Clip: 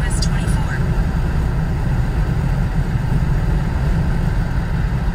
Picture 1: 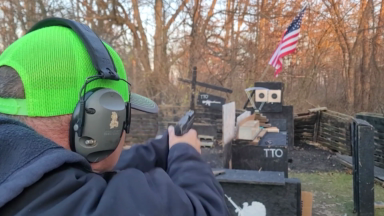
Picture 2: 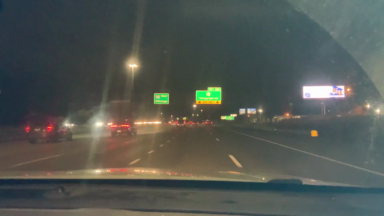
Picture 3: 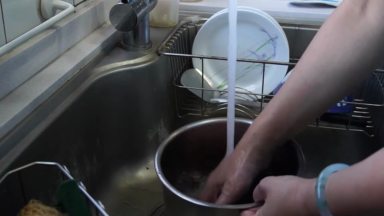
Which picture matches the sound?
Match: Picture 2